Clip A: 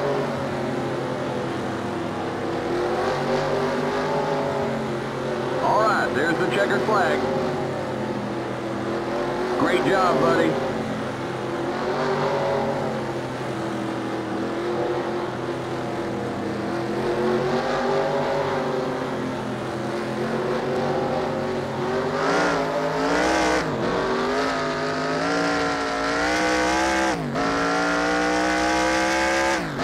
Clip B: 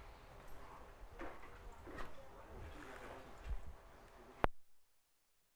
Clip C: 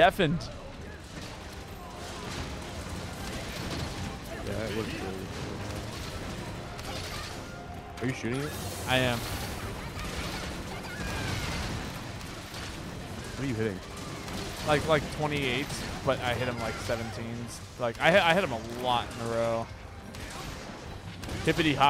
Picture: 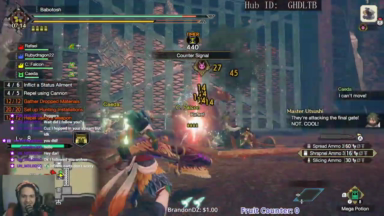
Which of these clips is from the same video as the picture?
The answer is C